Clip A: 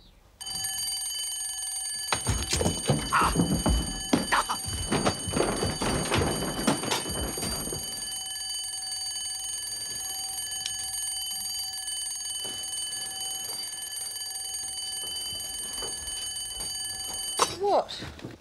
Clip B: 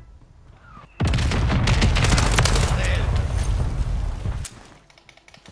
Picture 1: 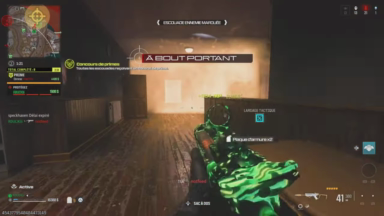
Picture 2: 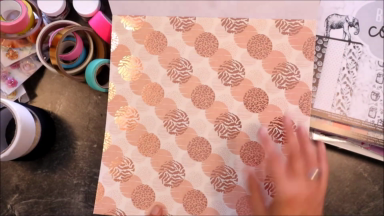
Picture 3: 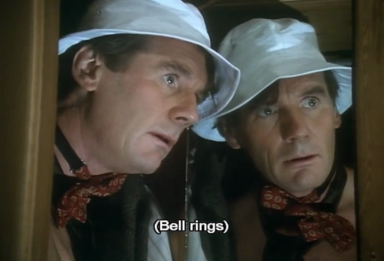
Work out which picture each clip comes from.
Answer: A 3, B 1